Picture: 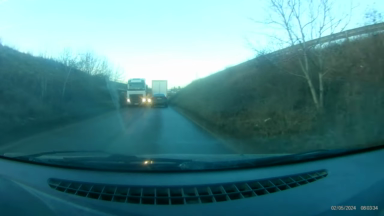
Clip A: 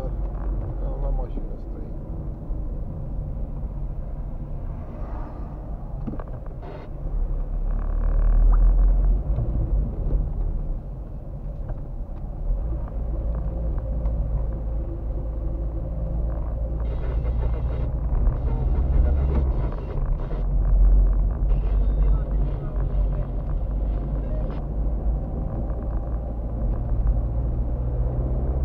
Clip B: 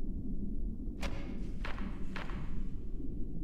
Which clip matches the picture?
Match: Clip A